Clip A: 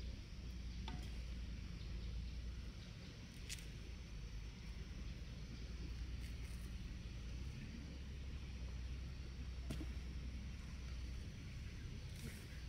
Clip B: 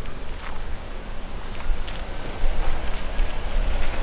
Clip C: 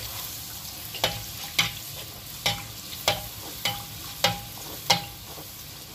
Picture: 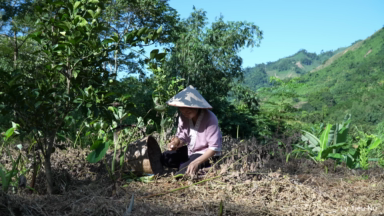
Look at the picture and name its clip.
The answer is A